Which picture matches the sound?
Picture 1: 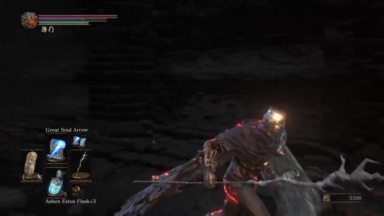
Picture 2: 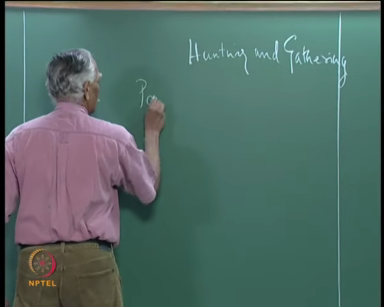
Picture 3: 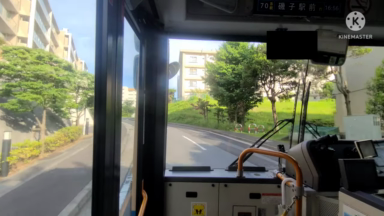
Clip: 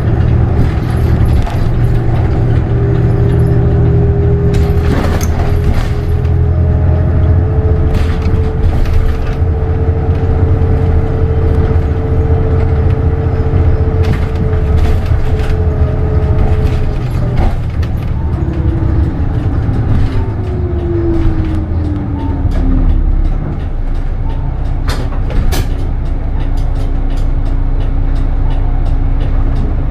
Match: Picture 3